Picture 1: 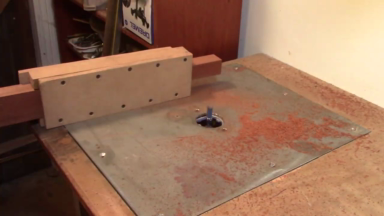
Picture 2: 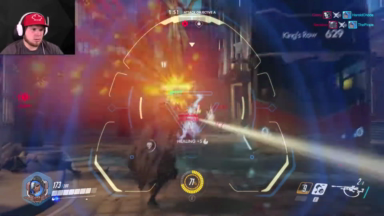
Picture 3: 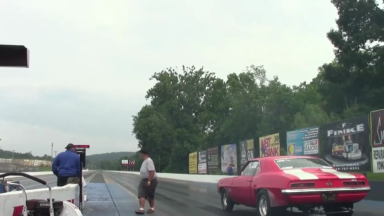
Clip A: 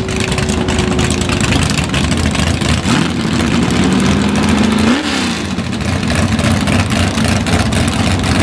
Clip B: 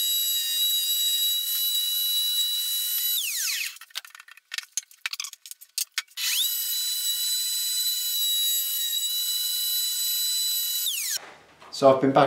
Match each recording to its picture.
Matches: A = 3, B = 1